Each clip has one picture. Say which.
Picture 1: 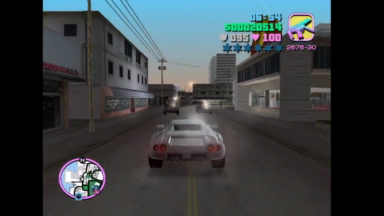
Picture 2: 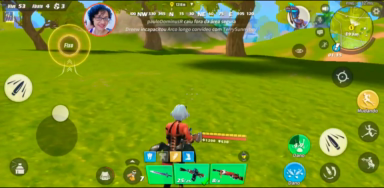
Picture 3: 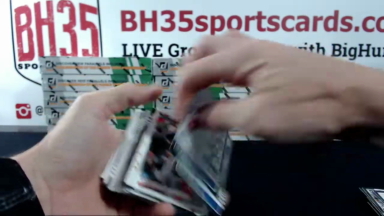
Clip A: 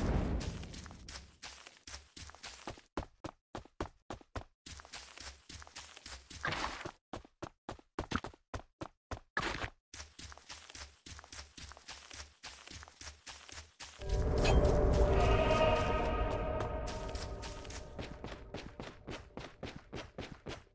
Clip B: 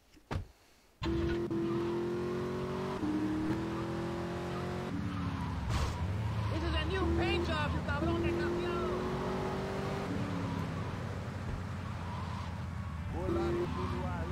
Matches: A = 2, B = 1